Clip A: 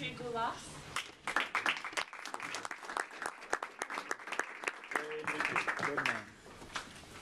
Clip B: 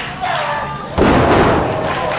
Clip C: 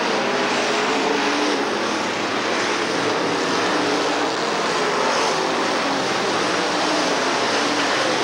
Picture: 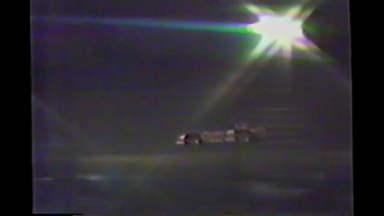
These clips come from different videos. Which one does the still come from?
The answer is C